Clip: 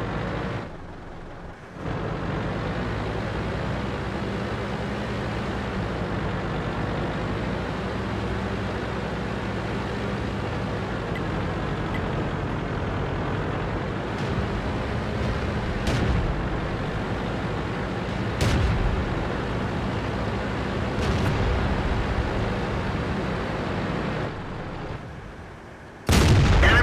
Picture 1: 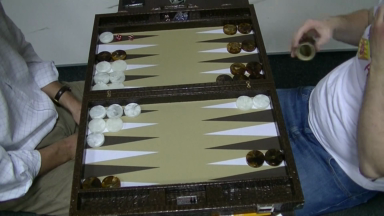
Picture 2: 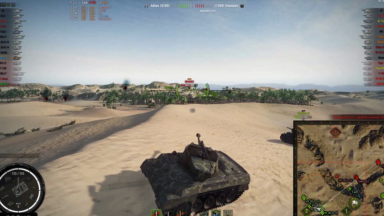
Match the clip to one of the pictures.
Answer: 2